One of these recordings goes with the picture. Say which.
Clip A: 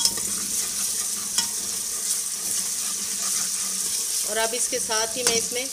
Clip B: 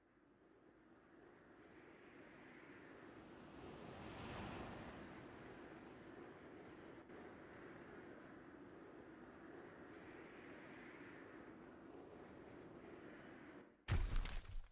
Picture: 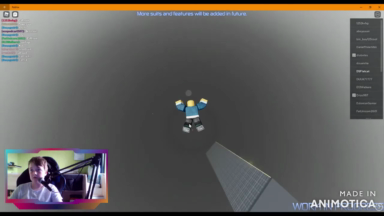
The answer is B